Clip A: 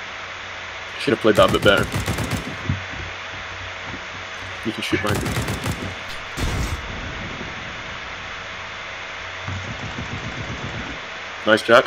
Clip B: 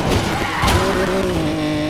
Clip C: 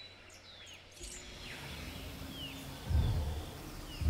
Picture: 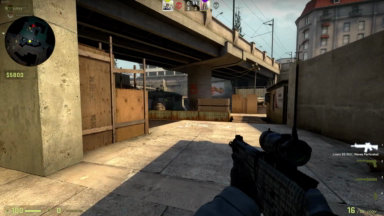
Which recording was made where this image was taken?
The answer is A